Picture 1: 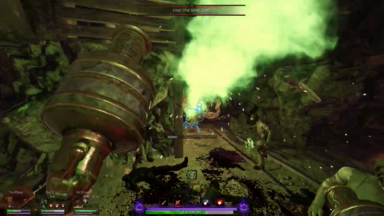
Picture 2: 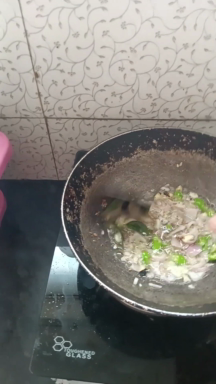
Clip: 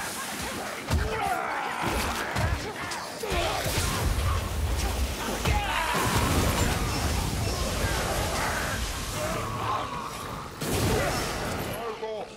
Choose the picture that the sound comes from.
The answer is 1